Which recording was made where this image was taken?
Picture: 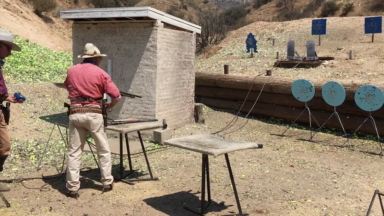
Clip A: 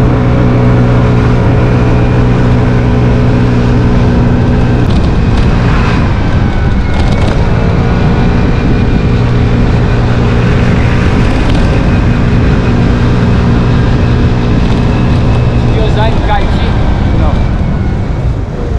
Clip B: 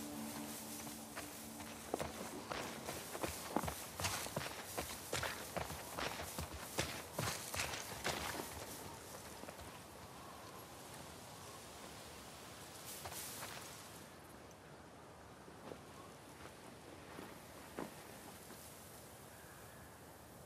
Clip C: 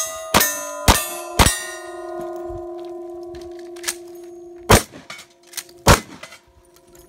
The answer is C